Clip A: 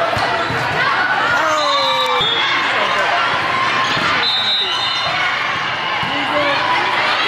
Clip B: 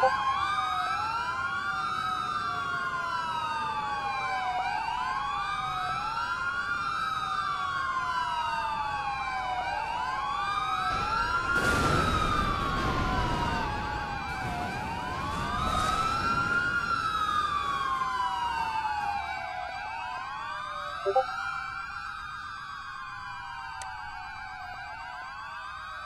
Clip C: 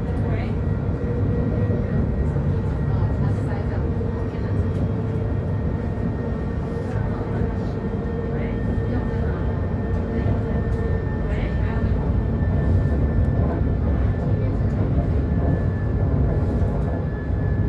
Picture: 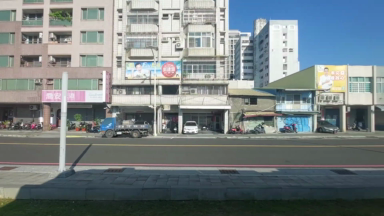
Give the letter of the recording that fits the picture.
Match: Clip C